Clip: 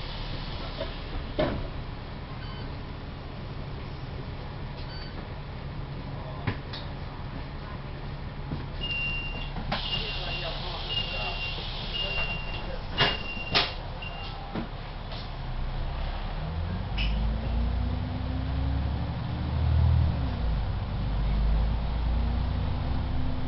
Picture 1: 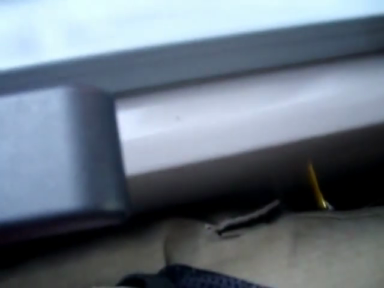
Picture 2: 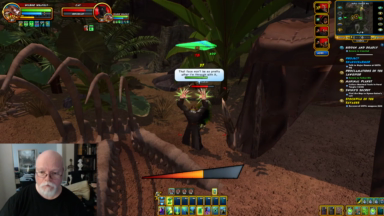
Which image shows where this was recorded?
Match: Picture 1